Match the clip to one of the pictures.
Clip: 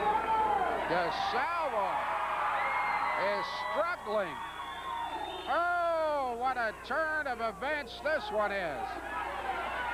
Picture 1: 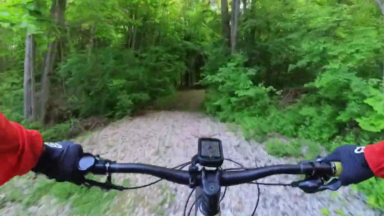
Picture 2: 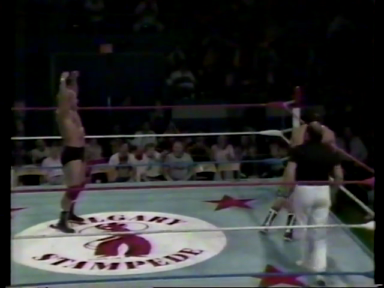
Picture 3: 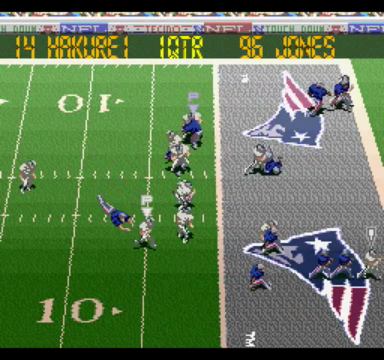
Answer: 2